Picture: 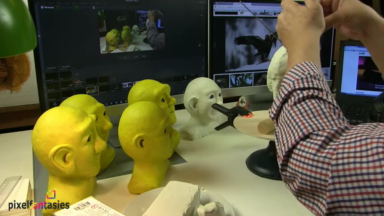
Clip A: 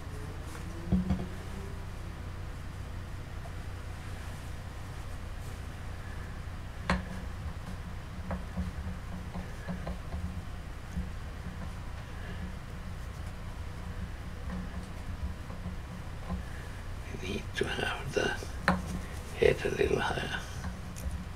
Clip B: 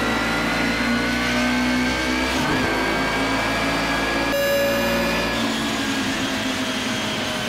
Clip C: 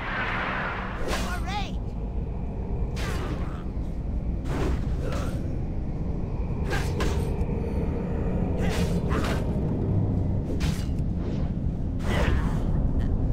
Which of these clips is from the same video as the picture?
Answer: A